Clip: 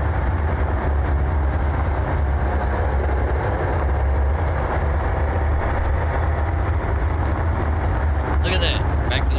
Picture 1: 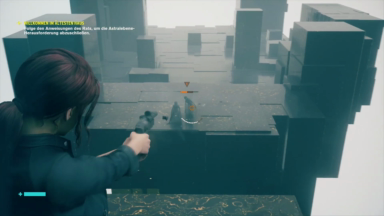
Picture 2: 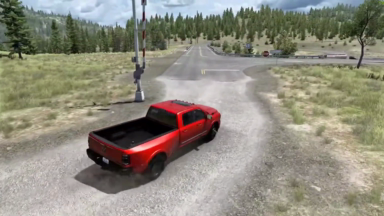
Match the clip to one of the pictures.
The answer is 2